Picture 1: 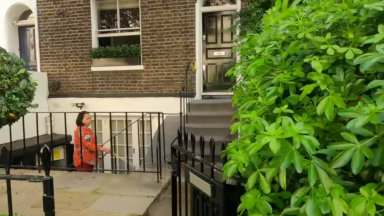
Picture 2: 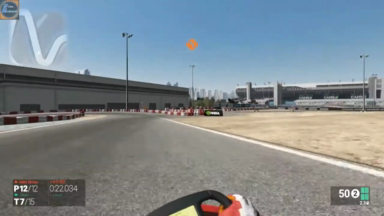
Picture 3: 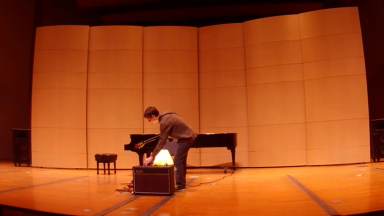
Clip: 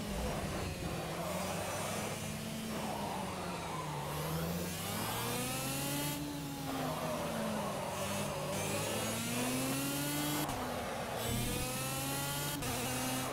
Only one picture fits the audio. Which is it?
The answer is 2